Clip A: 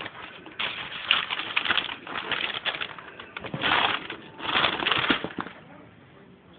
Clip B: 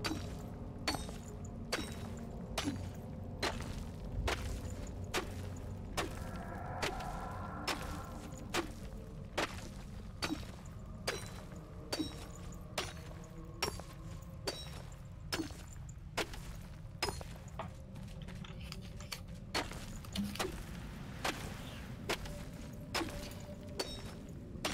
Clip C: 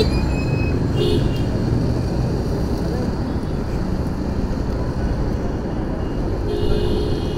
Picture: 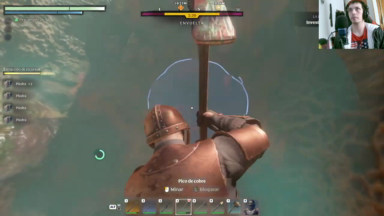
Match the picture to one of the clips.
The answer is B